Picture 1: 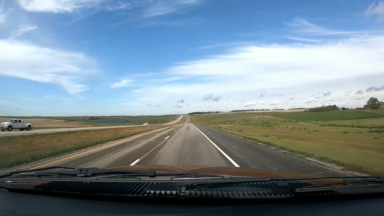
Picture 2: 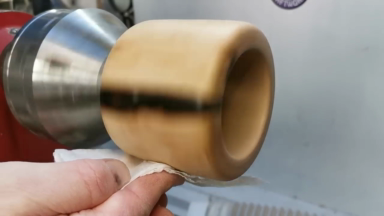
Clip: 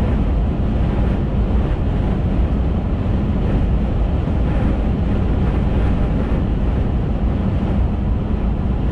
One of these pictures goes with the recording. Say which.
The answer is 1